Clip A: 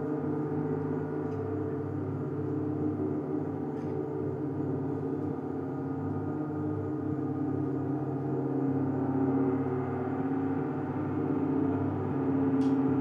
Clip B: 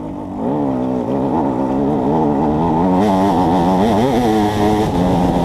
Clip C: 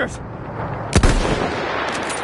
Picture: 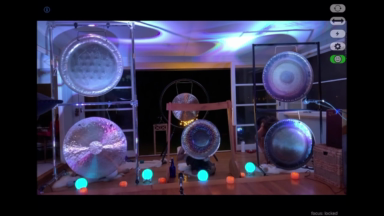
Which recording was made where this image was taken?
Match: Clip A